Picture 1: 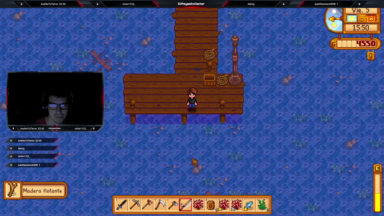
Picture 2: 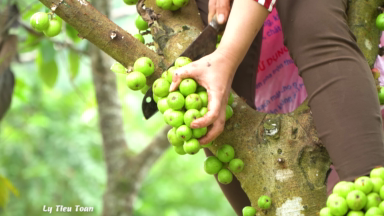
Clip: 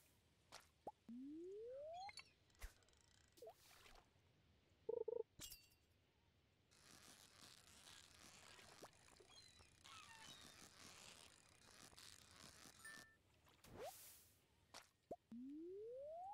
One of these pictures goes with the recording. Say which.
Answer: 1